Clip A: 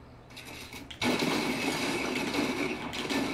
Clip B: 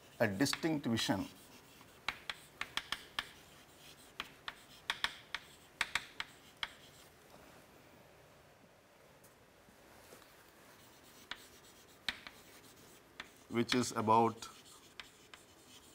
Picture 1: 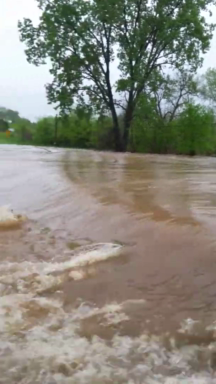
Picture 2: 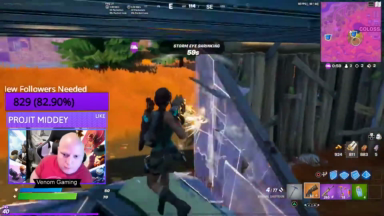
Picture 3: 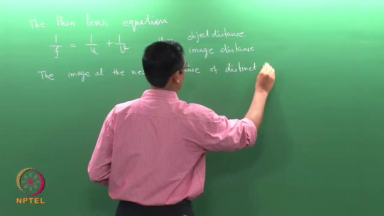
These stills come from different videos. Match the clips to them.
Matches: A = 2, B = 3